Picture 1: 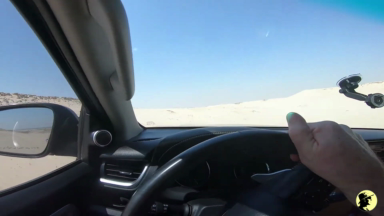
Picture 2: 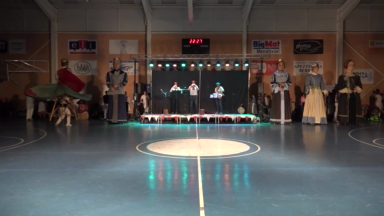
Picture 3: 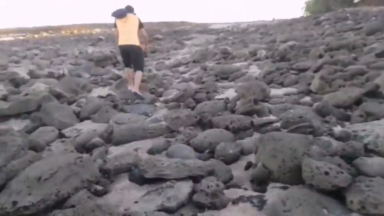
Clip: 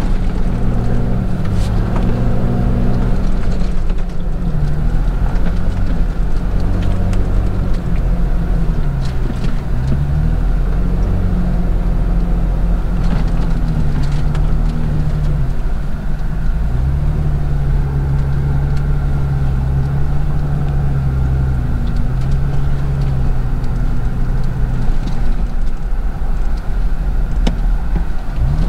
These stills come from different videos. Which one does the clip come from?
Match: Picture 1